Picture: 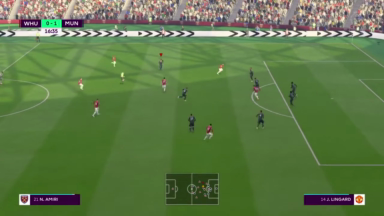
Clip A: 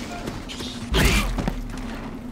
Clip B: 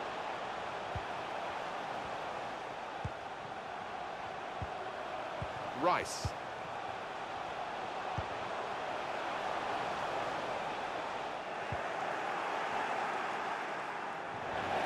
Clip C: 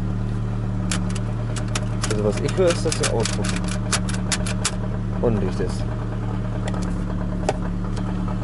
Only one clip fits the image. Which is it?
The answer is B